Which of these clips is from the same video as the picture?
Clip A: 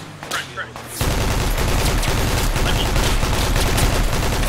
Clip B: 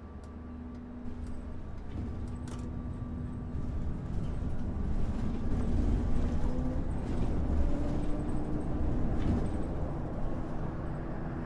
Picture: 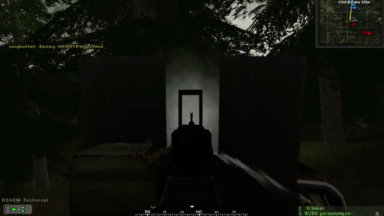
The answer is A